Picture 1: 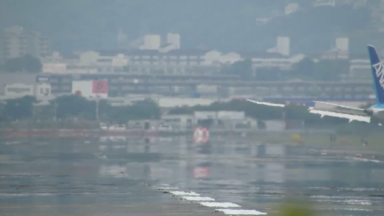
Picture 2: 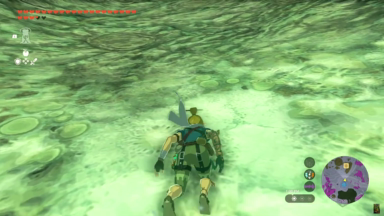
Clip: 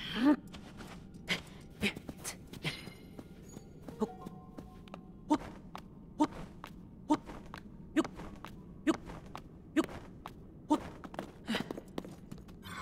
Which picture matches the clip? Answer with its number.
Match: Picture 2